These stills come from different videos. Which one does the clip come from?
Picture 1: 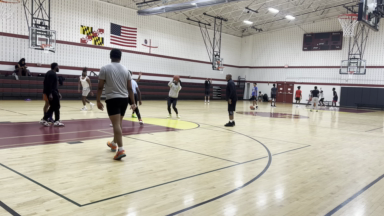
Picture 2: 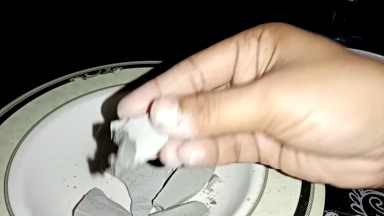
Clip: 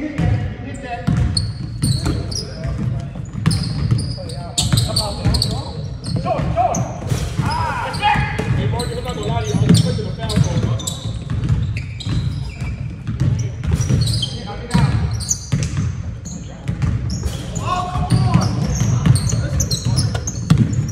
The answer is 1